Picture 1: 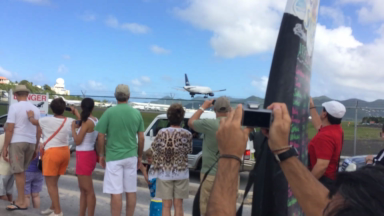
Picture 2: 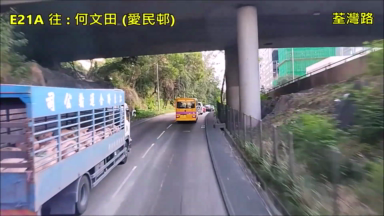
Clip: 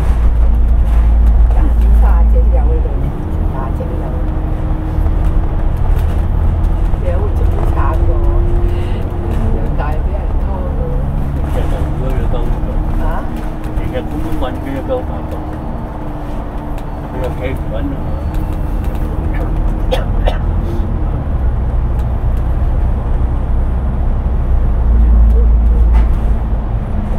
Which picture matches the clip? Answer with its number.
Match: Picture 2